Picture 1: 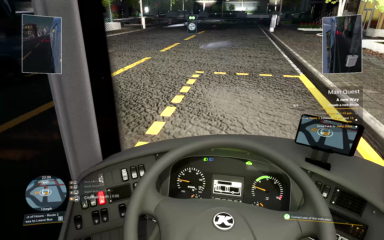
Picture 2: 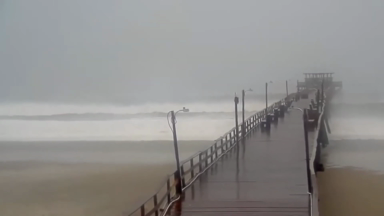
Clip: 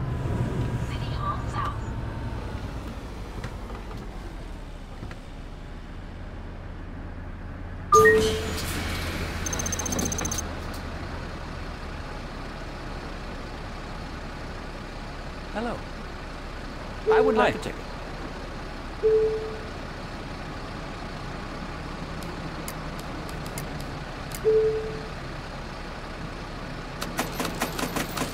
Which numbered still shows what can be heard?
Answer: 1